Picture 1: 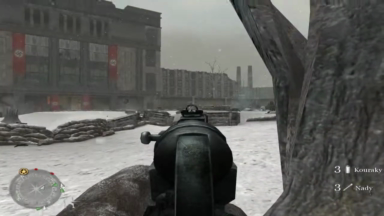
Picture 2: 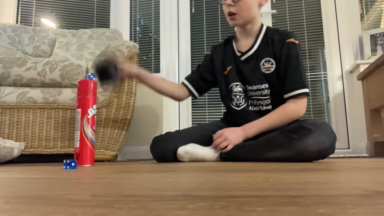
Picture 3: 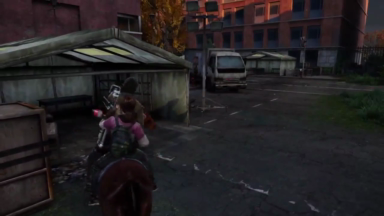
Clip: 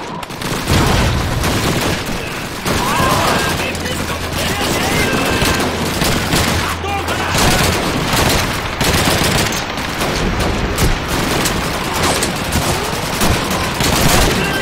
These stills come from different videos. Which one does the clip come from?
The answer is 1